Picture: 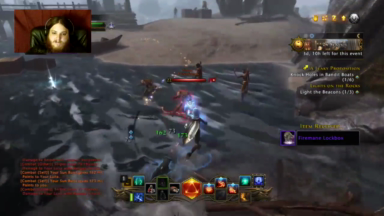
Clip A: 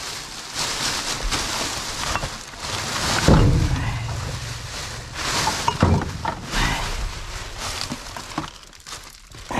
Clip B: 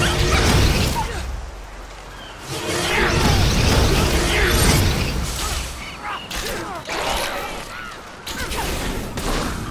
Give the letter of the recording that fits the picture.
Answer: B